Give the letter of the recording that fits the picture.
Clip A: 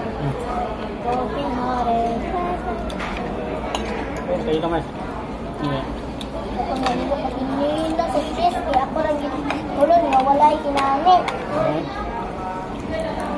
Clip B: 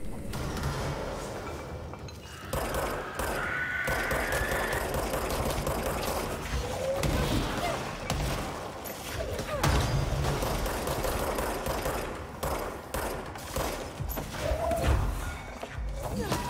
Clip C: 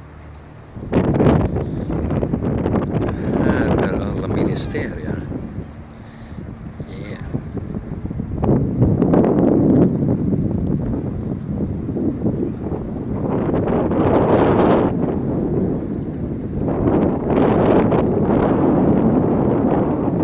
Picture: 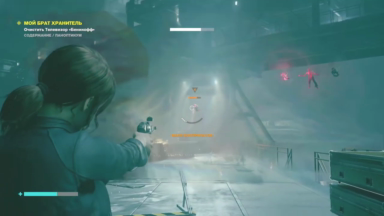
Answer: B